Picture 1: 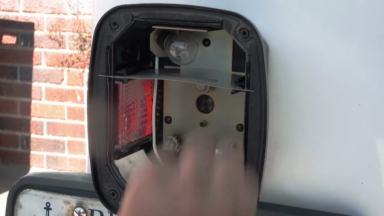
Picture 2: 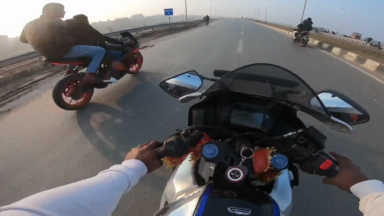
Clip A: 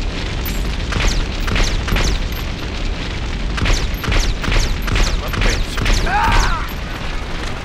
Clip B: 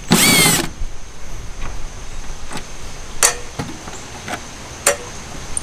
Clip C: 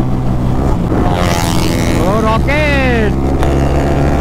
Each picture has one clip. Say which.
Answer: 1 B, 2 C